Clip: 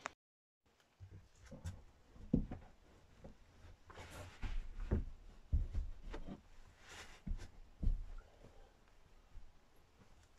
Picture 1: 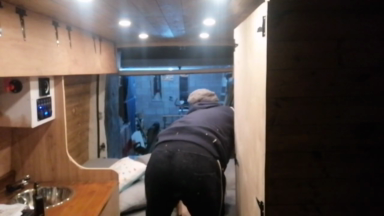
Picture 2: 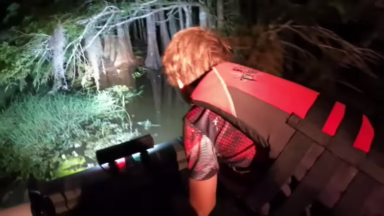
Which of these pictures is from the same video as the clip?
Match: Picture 1